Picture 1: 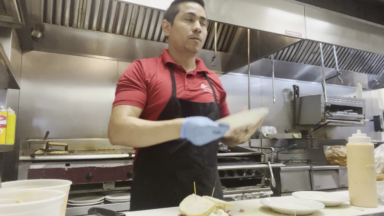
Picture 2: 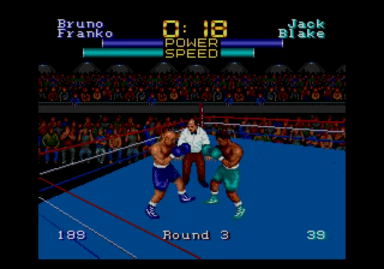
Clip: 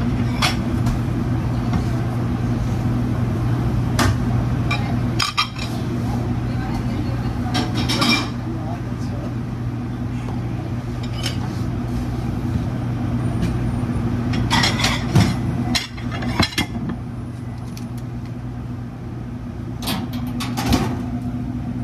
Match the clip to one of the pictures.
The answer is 1